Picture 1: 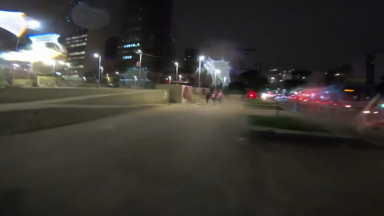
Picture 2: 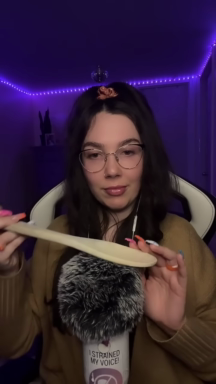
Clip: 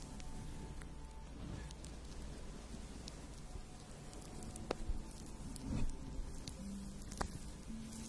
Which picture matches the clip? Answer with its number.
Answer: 2